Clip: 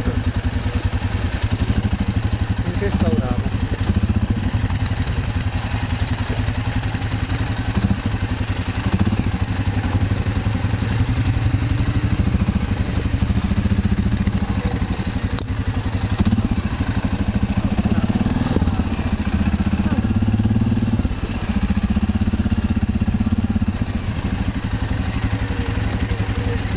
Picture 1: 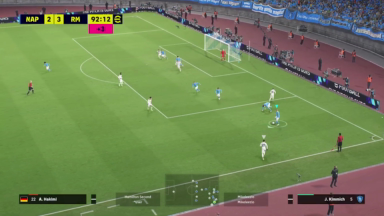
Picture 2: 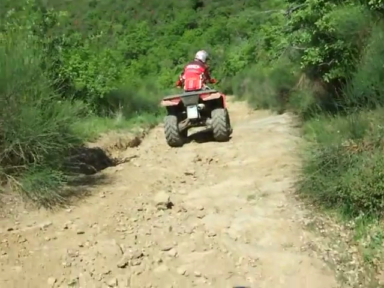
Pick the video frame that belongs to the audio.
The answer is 2